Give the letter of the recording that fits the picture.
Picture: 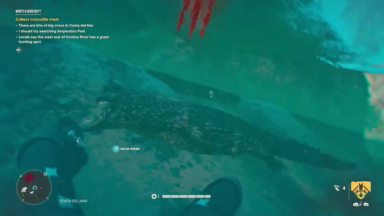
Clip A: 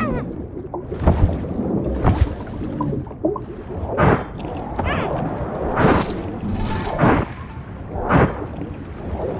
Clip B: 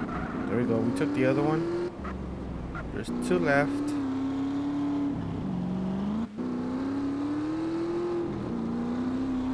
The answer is A